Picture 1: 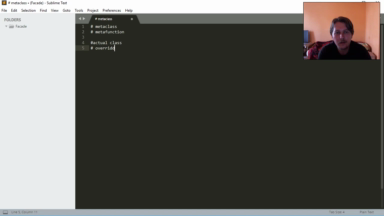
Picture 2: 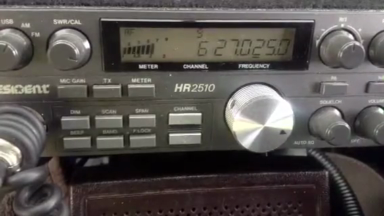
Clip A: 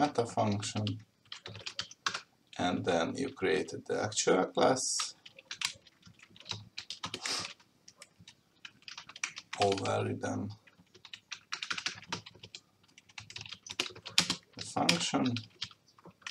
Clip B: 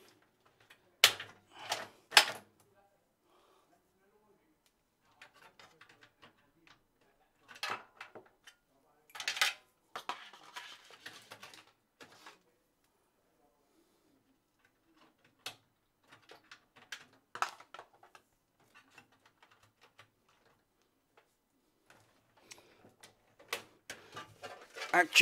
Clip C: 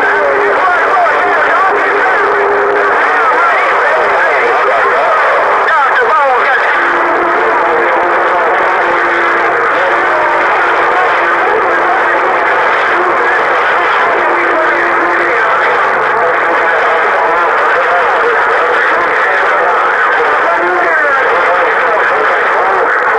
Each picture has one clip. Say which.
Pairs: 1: A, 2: C